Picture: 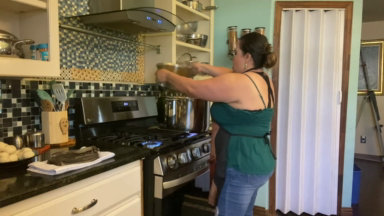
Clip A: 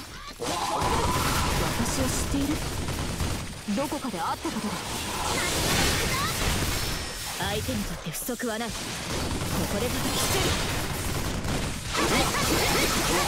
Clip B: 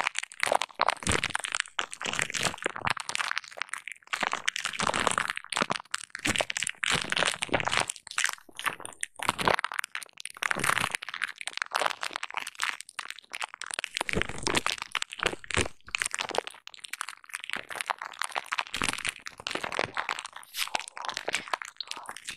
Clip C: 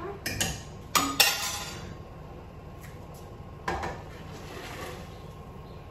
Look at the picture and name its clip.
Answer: C